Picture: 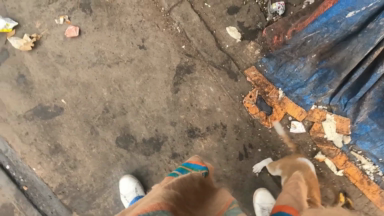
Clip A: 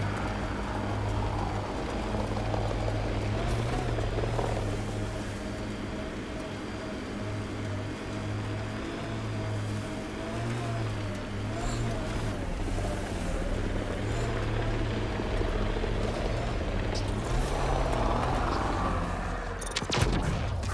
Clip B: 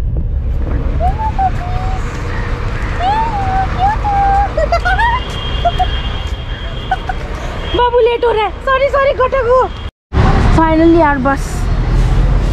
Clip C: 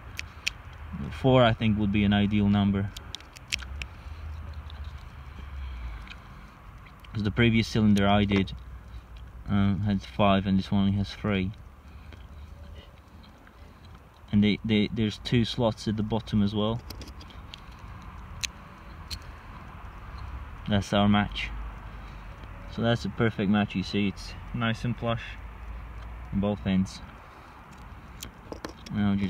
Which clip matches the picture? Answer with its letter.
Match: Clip B